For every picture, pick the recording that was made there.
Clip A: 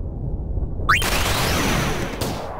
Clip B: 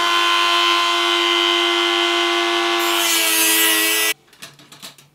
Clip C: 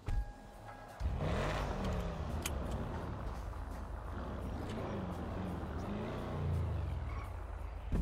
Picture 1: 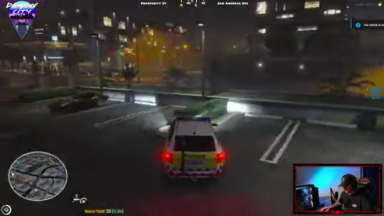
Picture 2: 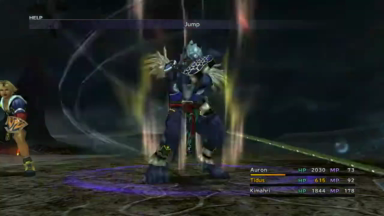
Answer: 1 C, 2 A